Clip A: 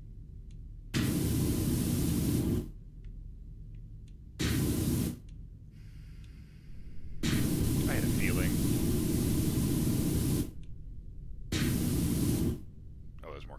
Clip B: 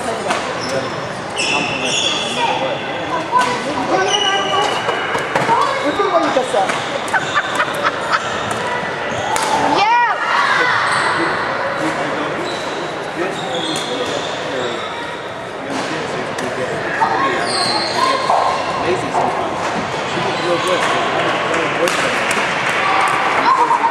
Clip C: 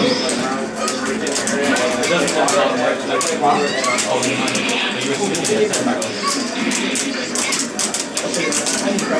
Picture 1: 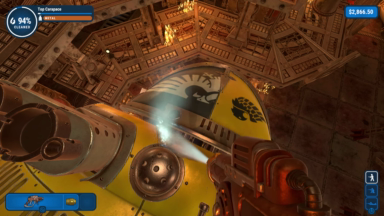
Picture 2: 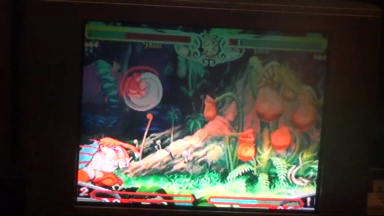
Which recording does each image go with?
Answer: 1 A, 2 C